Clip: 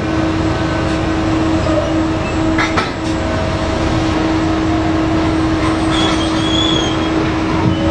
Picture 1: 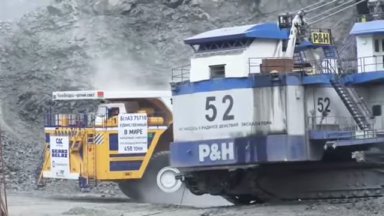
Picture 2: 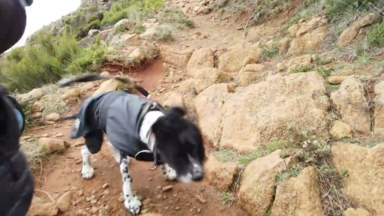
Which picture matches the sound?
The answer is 1